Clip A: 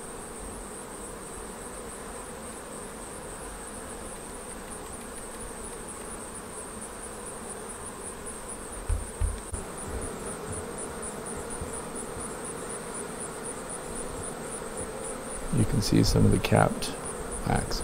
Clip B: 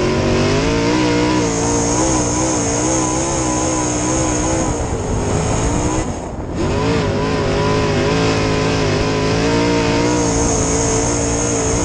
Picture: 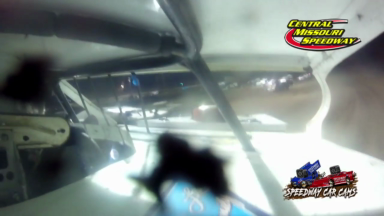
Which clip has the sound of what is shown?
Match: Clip B